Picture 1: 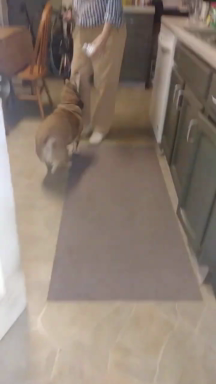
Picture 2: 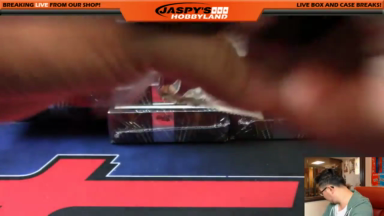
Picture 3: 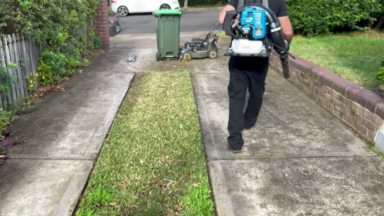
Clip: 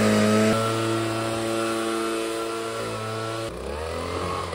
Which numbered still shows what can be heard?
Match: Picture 3